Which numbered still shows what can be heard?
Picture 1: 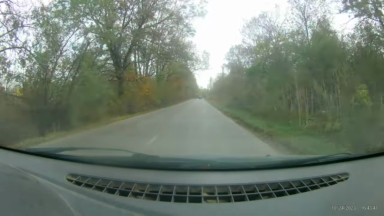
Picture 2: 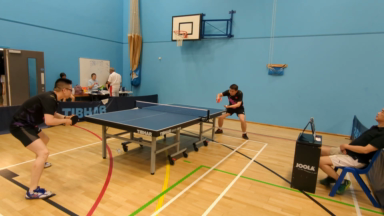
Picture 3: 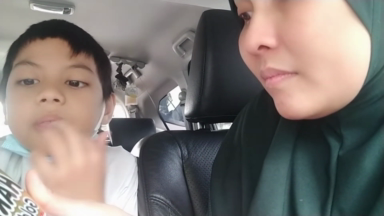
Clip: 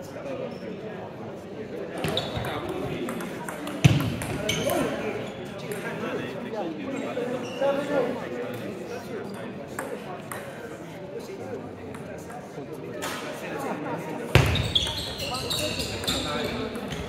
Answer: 2